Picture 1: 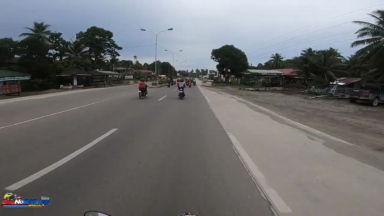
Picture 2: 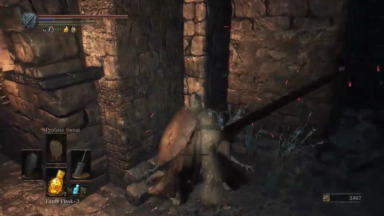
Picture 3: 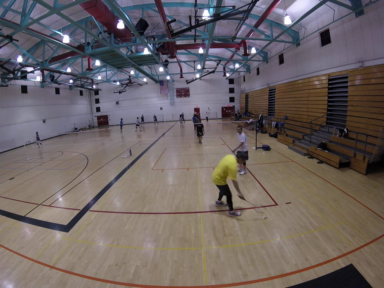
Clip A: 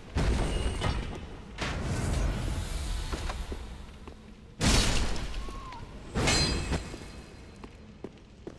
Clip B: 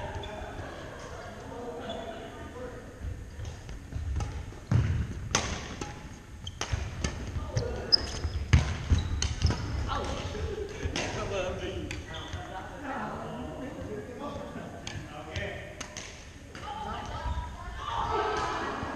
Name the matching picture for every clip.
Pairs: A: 2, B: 3